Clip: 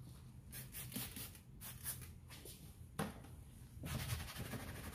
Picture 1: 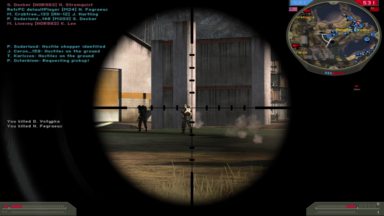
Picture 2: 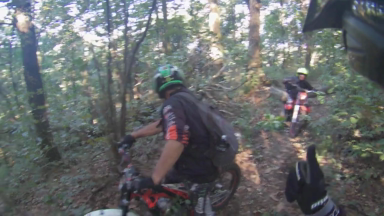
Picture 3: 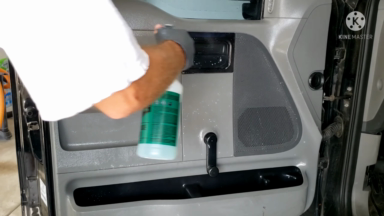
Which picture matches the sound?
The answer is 3